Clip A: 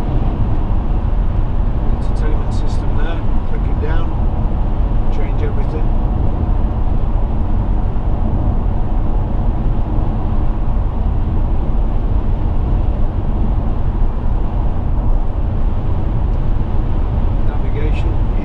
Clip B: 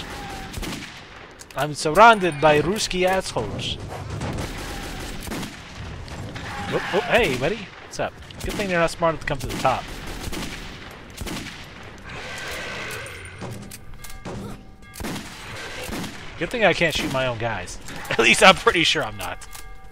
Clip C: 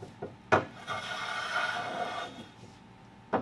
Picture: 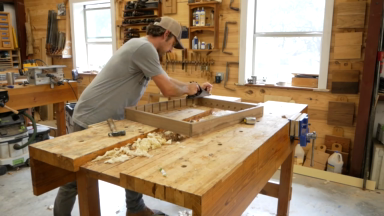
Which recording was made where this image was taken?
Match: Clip C